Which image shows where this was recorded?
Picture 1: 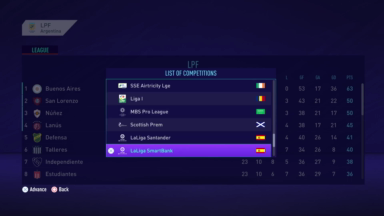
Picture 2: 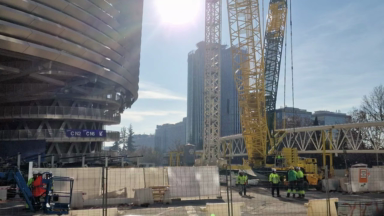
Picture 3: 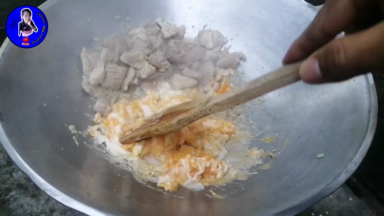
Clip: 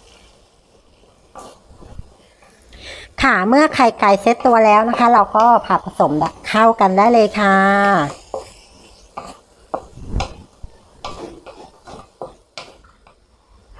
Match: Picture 3